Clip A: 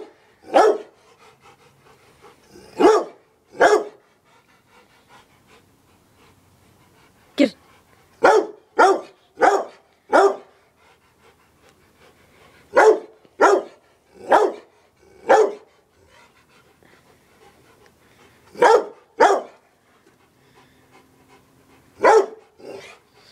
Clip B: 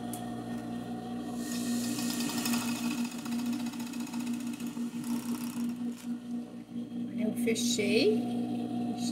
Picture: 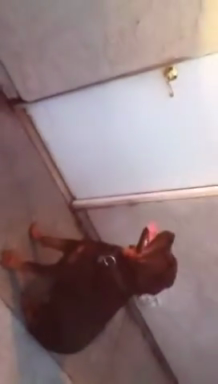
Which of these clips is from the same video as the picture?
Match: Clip A